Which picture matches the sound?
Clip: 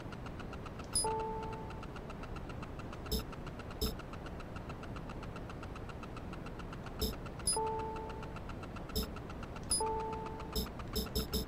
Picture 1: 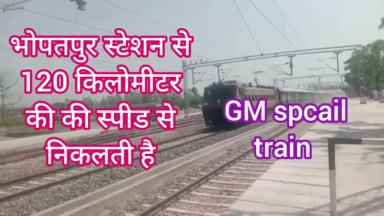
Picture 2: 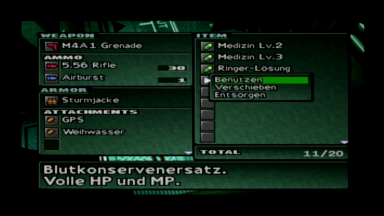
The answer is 2